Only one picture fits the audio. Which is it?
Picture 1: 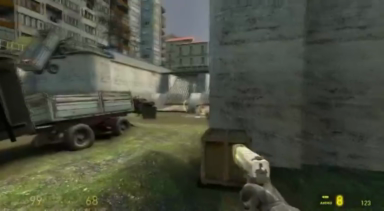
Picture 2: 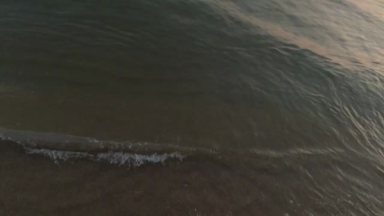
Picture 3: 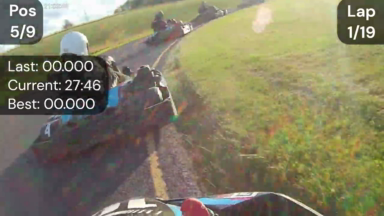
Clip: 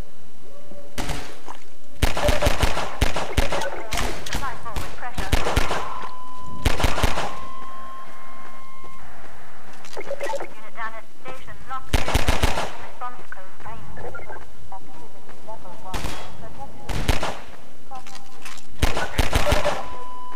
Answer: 1